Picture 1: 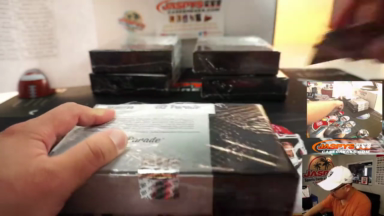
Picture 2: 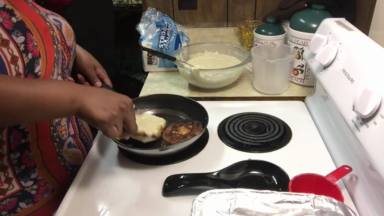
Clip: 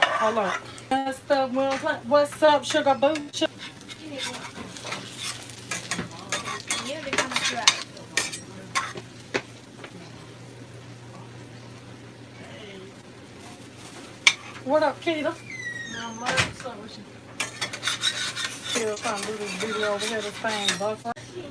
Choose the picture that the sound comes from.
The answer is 2